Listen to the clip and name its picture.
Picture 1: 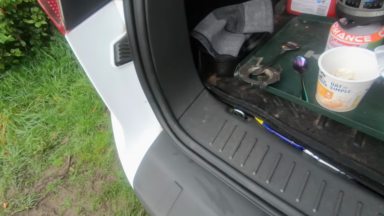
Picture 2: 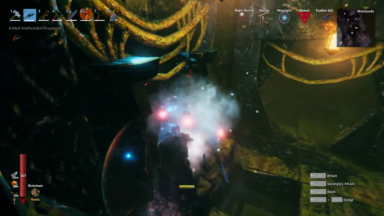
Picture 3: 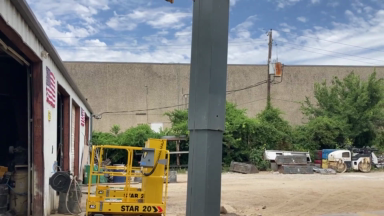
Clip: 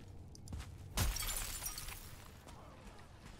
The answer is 2